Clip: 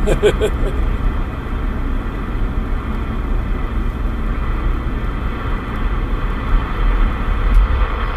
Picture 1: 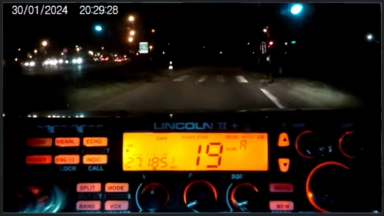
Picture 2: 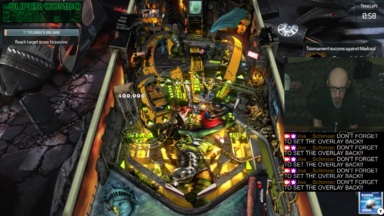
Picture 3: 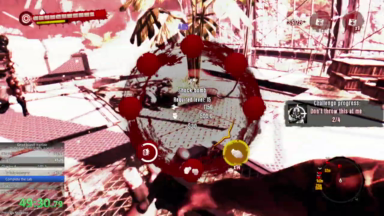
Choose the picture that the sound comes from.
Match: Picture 1